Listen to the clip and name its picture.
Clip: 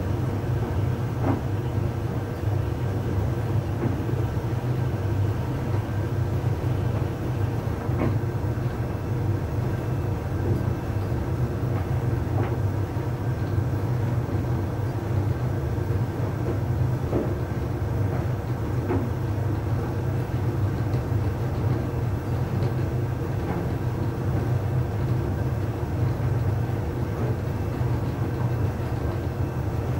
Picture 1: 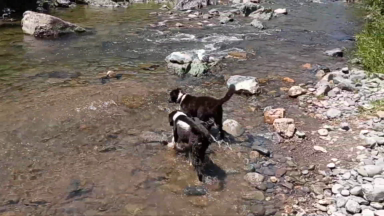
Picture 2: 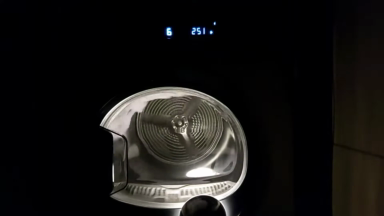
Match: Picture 2